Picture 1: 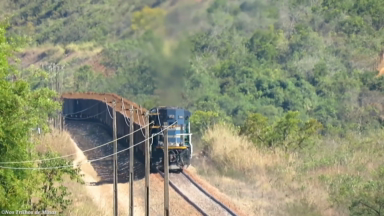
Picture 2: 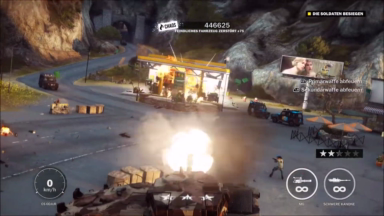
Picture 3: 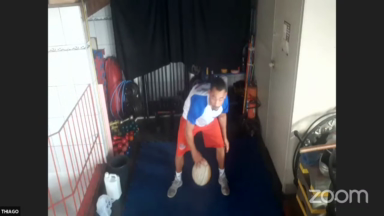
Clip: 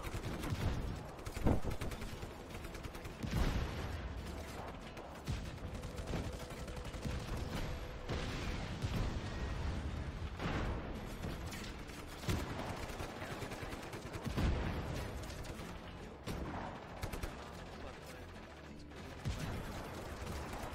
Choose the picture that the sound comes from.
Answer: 2